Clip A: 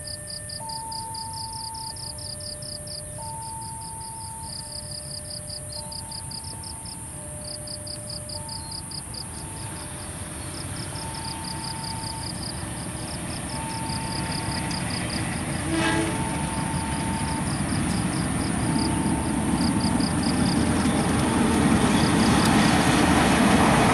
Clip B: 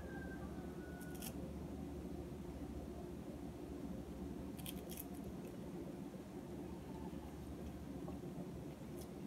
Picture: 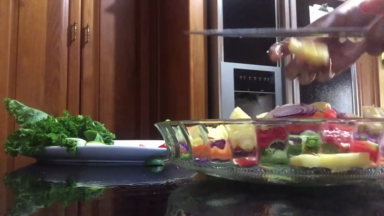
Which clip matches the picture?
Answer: B